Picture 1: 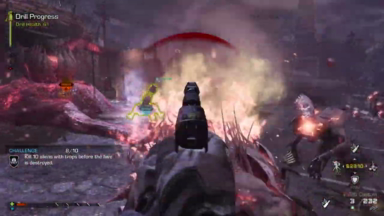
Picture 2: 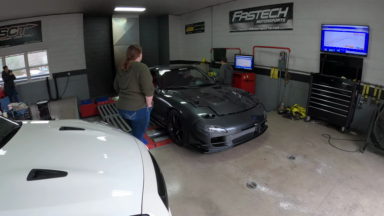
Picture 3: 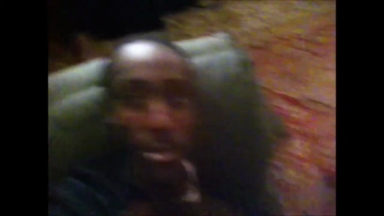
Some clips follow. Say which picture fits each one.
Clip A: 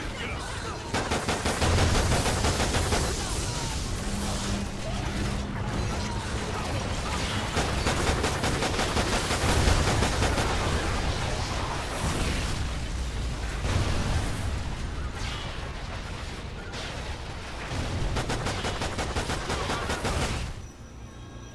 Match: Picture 1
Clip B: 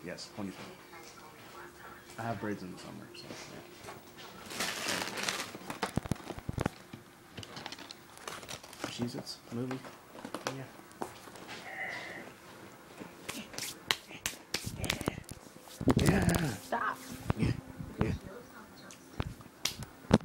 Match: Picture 3